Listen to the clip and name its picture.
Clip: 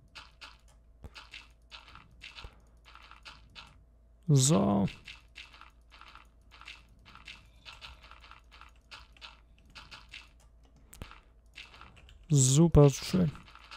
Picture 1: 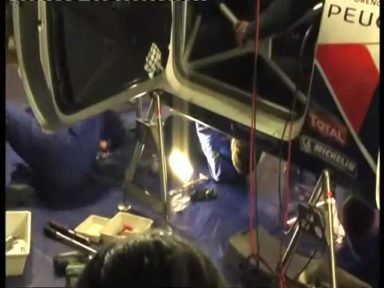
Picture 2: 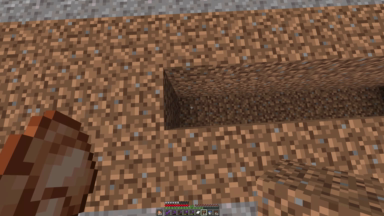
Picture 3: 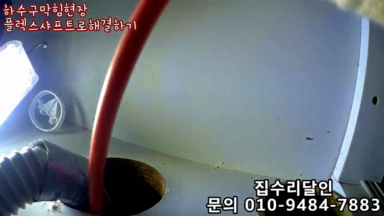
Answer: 2